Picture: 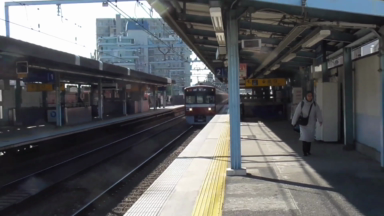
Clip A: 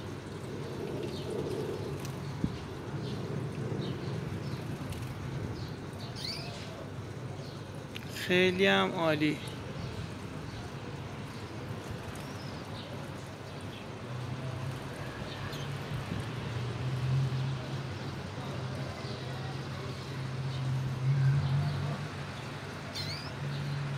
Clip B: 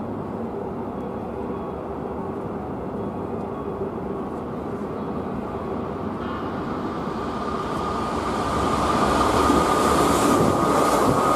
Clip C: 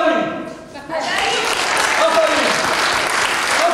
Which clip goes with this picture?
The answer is B